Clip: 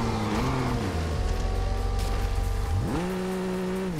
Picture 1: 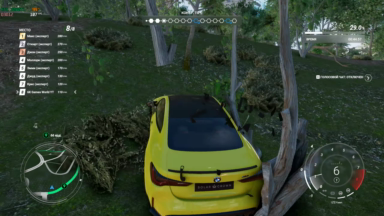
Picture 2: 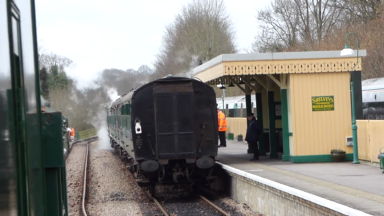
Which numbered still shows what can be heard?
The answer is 1